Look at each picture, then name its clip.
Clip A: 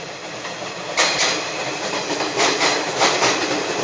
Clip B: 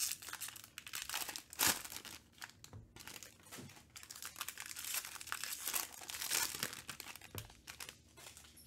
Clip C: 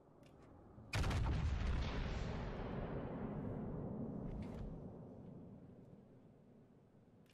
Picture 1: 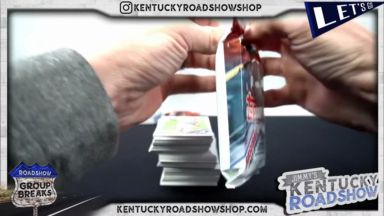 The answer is B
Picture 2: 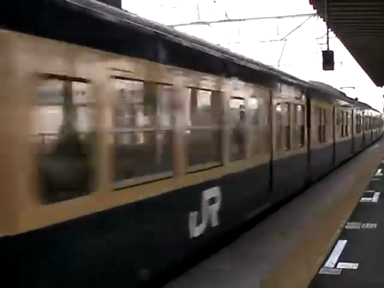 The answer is A